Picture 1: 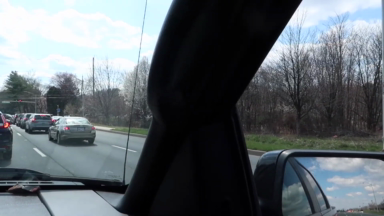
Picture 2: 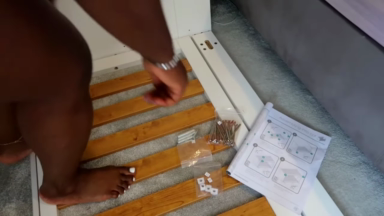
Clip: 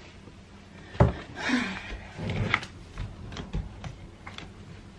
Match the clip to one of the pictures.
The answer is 2